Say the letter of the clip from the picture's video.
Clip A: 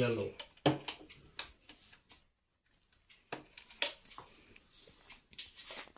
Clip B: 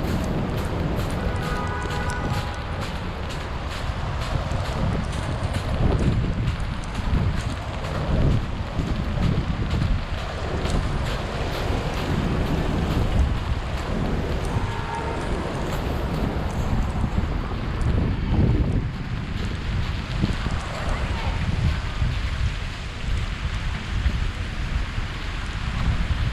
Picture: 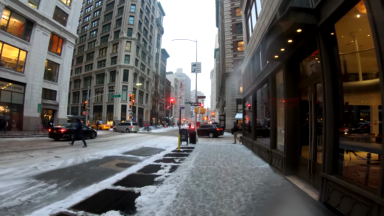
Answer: B